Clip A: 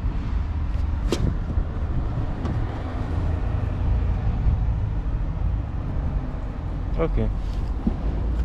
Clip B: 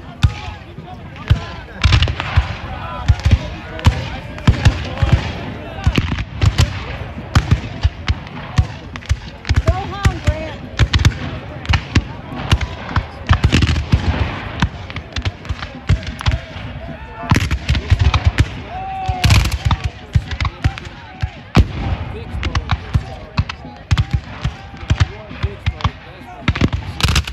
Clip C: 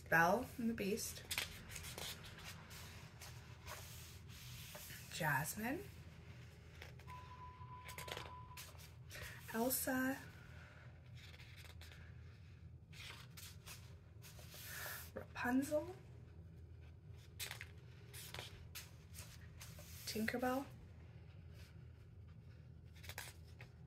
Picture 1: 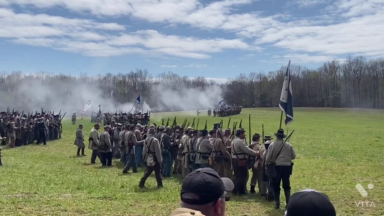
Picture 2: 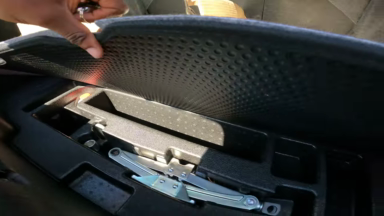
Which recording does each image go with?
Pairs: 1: B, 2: A